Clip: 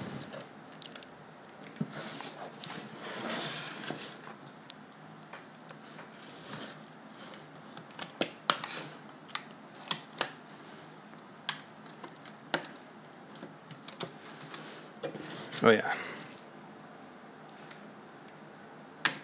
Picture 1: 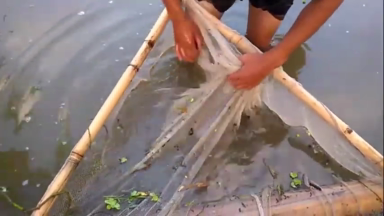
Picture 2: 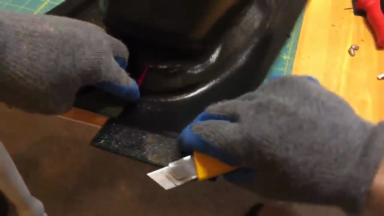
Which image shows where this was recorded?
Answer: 2